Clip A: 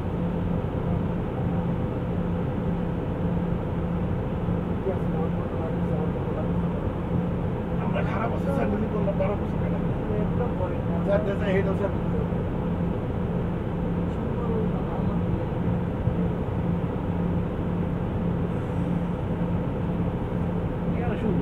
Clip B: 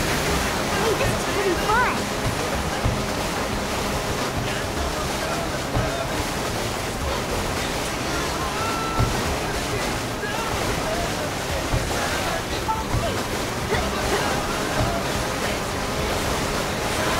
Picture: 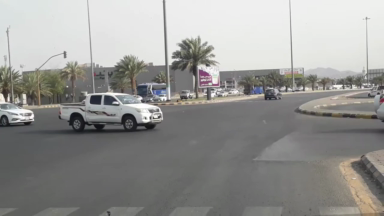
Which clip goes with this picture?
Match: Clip A